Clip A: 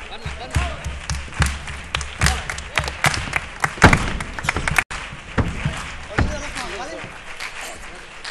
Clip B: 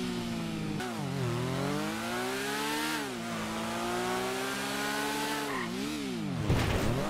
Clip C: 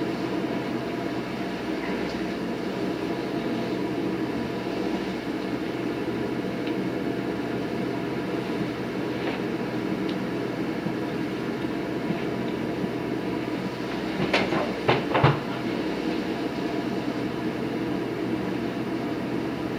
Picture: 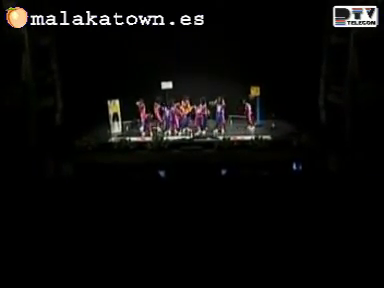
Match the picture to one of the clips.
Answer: A